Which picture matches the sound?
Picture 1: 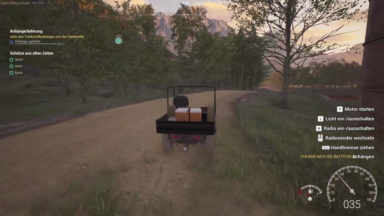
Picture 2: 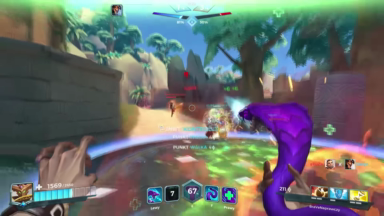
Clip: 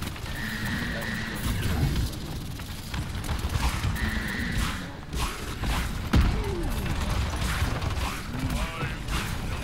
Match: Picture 2